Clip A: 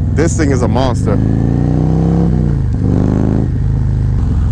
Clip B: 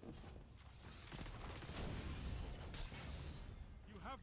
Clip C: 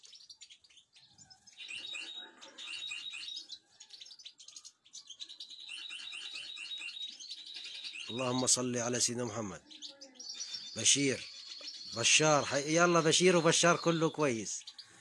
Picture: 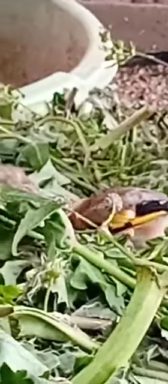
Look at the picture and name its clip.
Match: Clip C